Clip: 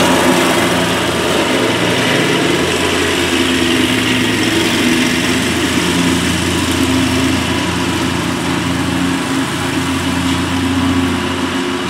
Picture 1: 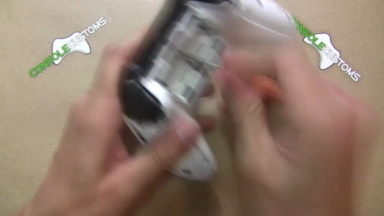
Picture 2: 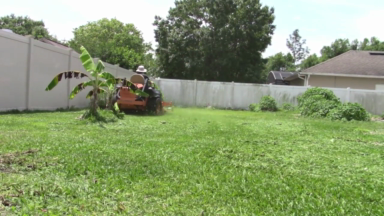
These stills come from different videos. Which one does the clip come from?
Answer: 2